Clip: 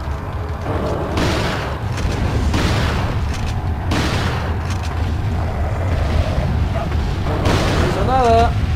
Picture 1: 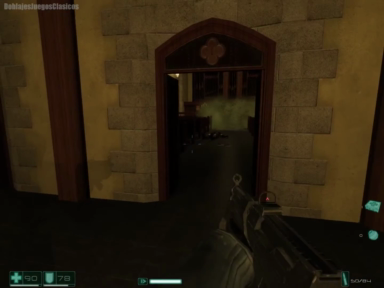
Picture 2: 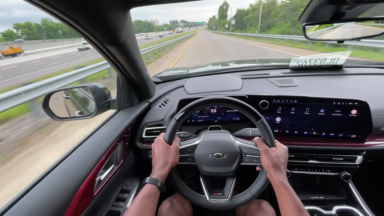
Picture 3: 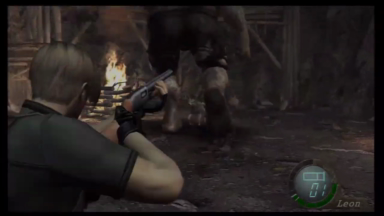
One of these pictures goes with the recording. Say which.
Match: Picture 3